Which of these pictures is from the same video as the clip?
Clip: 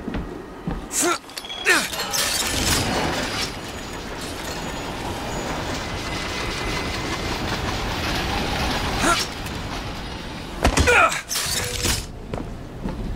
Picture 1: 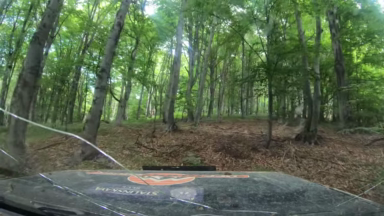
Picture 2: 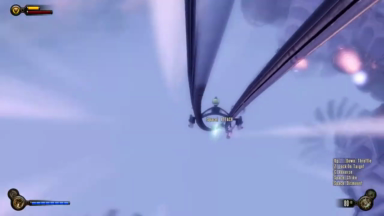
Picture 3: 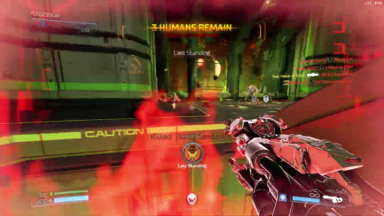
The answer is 2